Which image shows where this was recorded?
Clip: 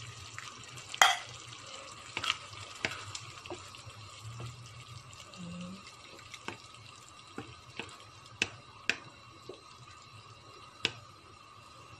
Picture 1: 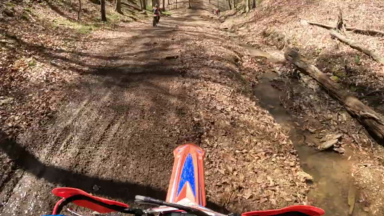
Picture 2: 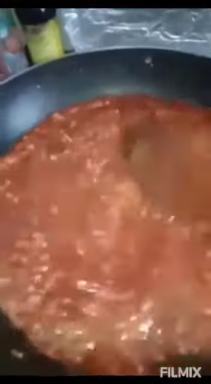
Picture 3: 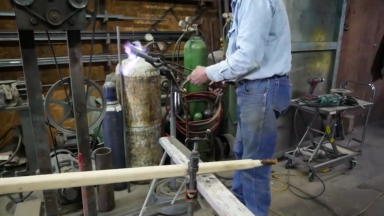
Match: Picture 2